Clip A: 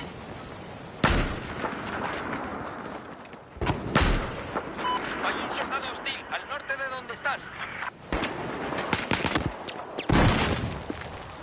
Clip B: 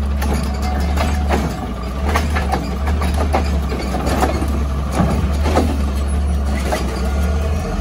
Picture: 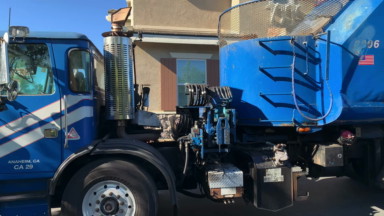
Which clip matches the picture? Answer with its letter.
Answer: B